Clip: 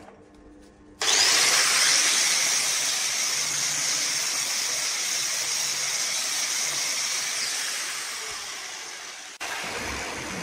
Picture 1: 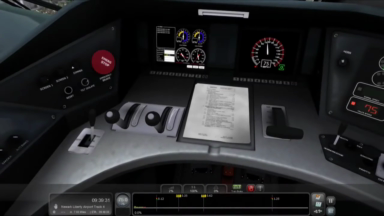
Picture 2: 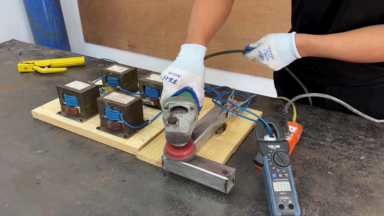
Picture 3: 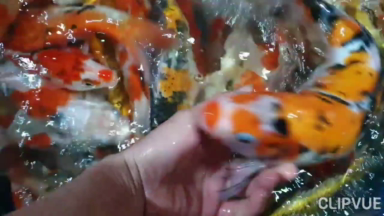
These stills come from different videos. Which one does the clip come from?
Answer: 2